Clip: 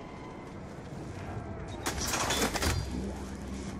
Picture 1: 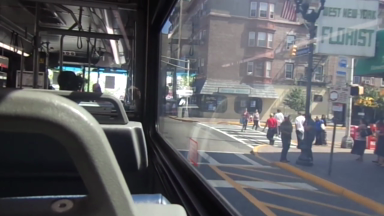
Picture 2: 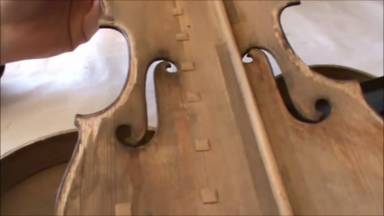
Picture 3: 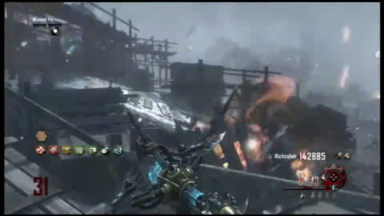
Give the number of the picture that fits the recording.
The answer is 3